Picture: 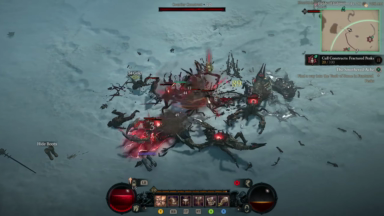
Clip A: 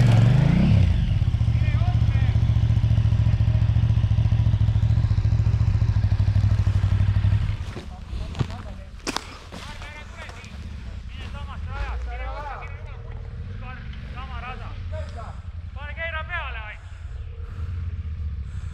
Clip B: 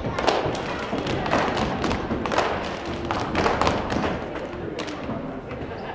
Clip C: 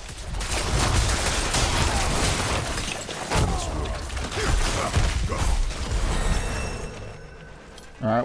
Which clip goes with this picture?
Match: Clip C